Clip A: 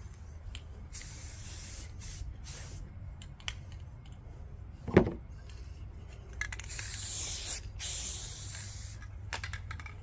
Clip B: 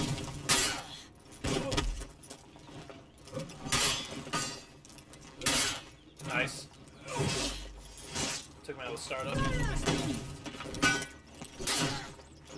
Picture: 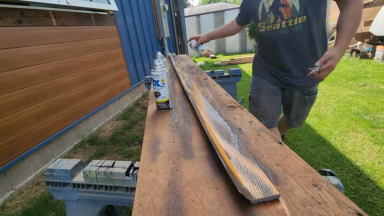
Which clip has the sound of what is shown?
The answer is A